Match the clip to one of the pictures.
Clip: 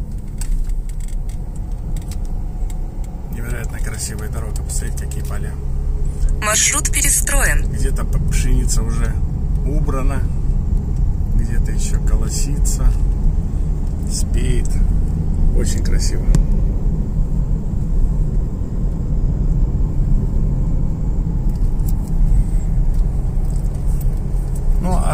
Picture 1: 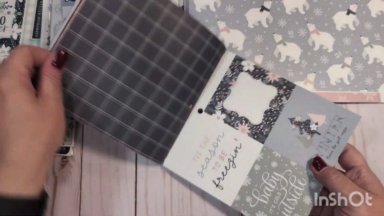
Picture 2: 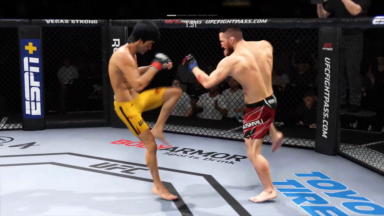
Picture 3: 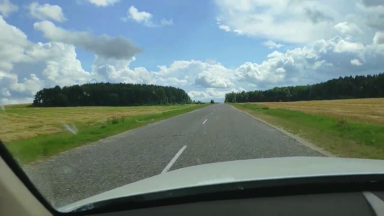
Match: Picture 3